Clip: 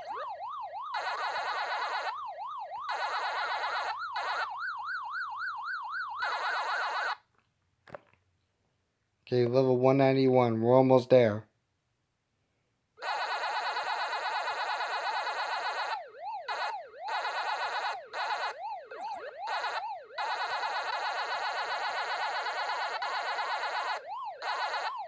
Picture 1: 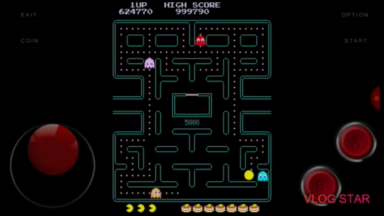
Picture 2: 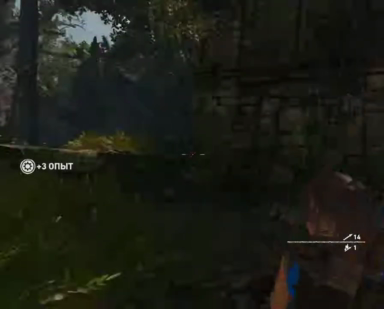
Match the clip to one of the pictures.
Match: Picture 1